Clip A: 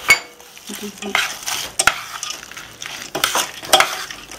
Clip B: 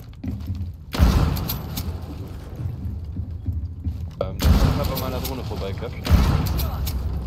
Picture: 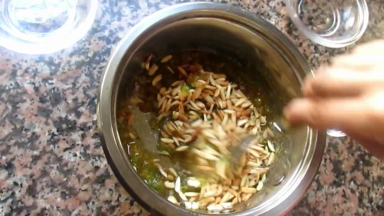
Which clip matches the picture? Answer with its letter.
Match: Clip A